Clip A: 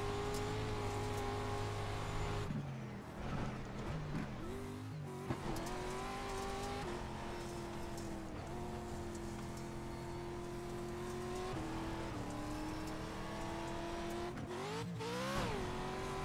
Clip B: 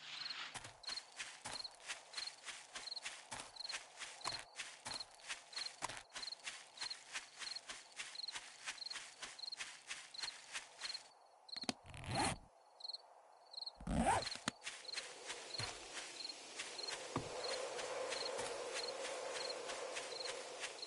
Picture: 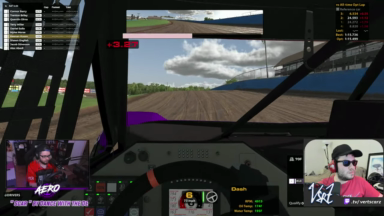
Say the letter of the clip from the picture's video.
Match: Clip A